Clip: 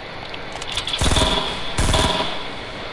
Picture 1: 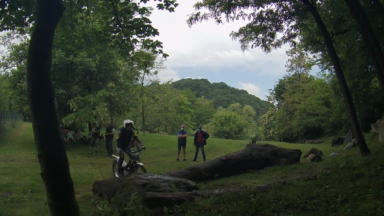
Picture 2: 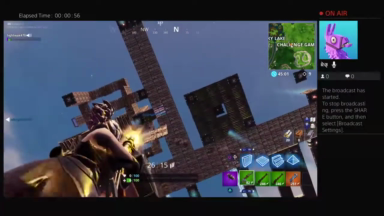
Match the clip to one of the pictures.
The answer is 2